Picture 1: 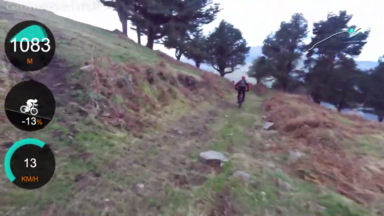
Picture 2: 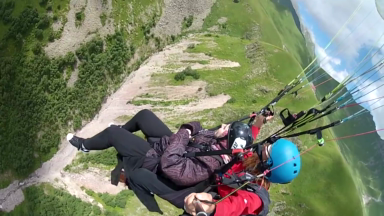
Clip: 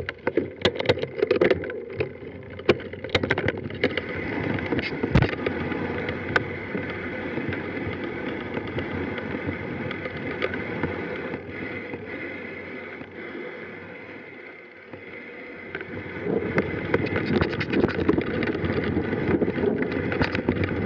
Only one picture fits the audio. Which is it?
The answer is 1